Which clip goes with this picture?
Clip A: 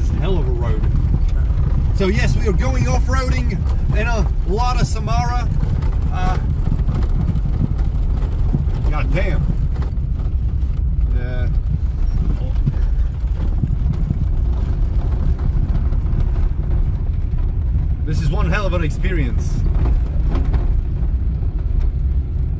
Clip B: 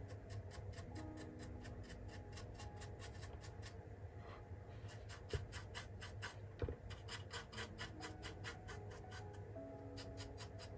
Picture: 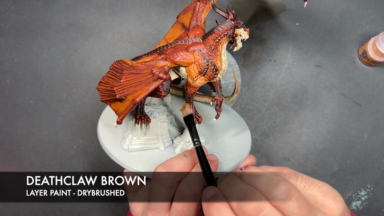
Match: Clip B